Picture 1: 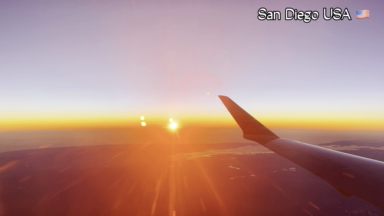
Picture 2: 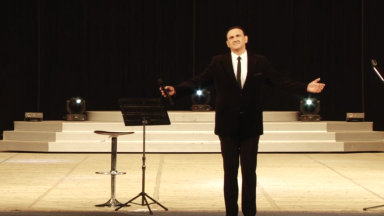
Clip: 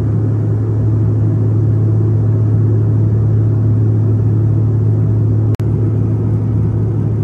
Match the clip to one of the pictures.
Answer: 1